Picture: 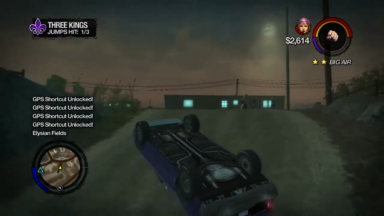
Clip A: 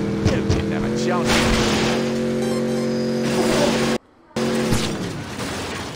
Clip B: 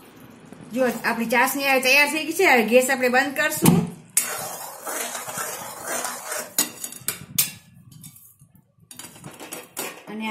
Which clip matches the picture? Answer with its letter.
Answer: A